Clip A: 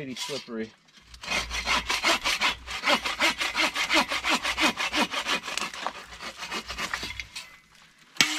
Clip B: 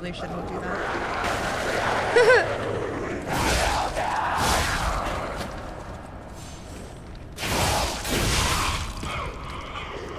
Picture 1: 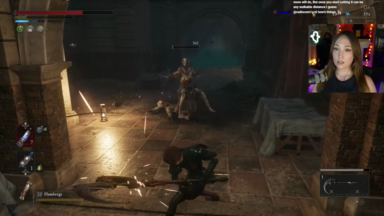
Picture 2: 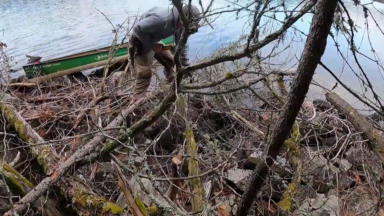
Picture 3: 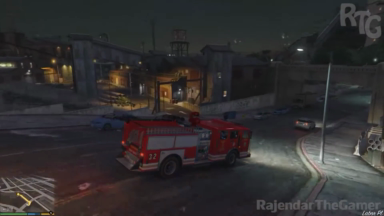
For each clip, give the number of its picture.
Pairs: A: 2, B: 1